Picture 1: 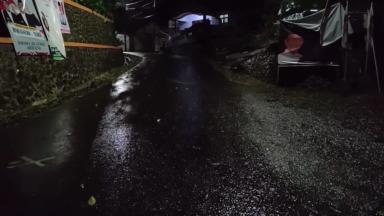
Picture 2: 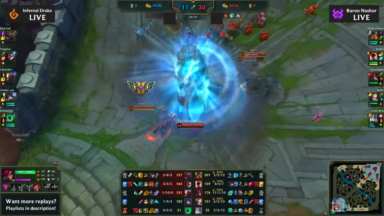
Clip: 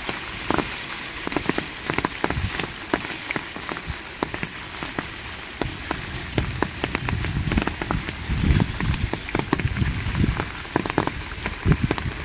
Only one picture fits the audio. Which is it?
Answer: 1